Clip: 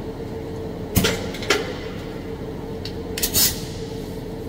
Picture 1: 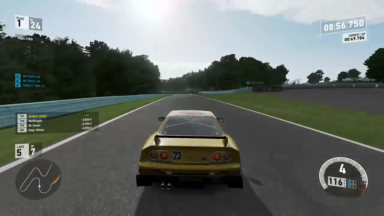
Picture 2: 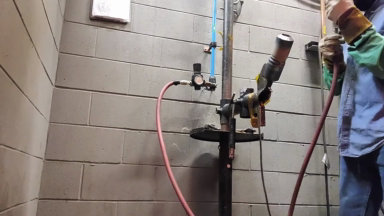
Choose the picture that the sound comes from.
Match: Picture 2